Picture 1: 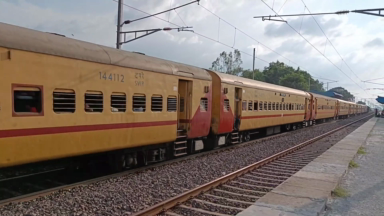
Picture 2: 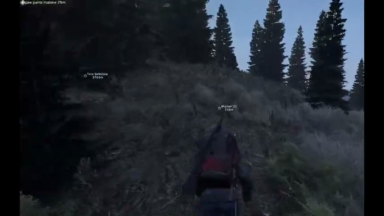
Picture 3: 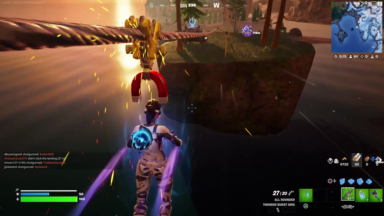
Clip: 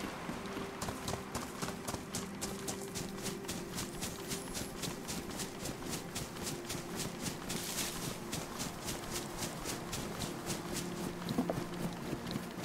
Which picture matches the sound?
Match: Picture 2